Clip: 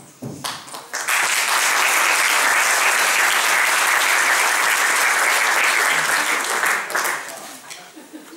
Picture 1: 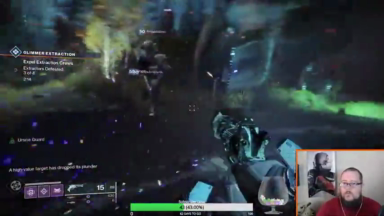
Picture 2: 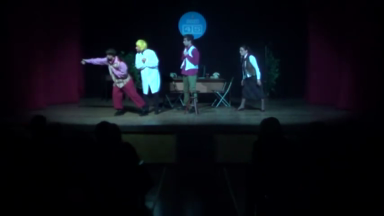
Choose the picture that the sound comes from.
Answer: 2